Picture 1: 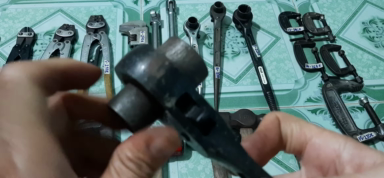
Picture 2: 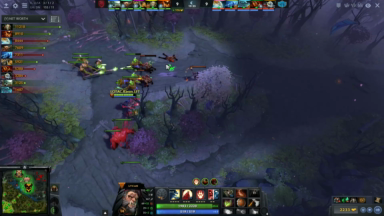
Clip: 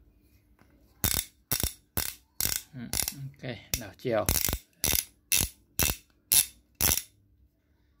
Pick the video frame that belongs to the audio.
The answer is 1